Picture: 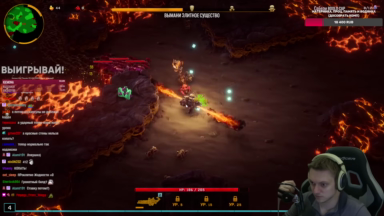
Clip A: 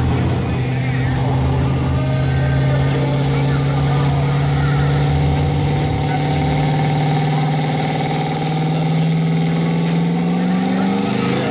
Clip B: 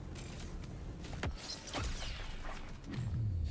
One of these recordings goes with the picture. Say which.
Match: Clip B